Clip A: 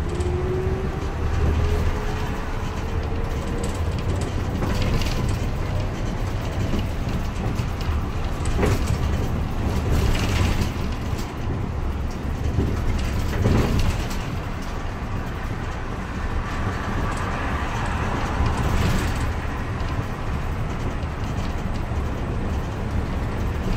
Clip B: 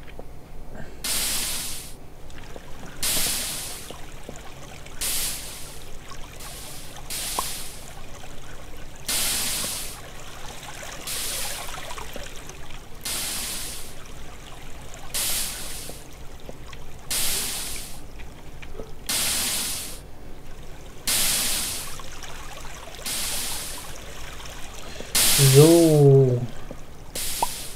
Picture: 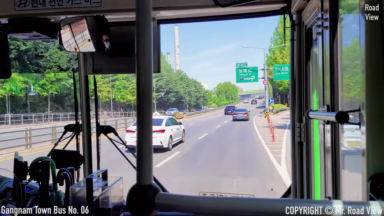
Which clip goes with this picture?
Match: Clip A